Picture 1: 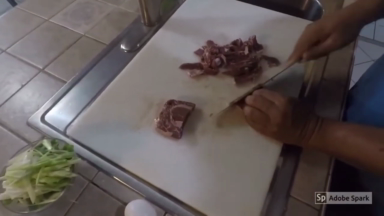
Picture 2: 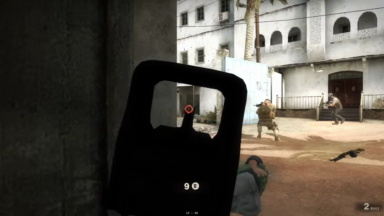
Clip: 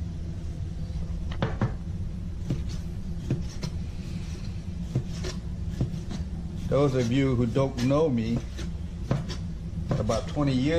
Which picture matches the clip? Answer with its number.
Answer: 1